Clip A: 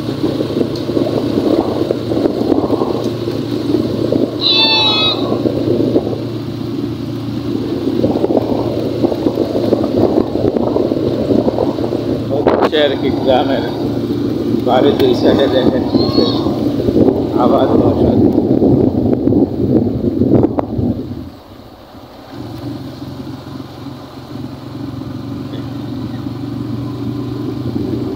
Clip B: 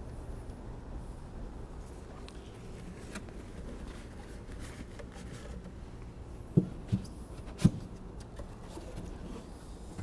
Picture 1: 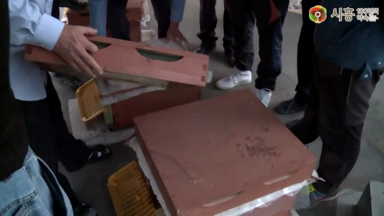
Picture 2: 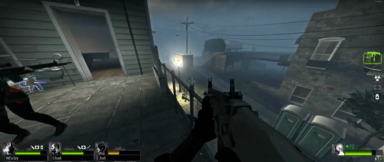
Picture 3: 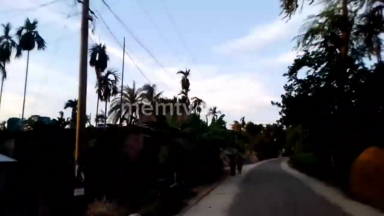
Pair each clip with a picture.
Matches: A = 3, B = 1